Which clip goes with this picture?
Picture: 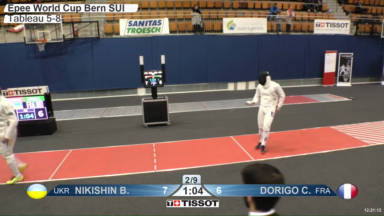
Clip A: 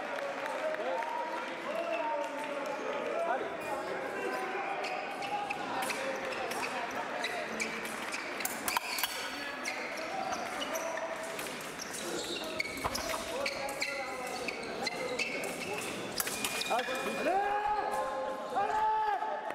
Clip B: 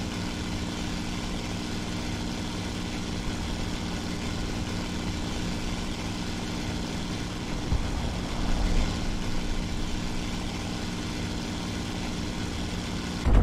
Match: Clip A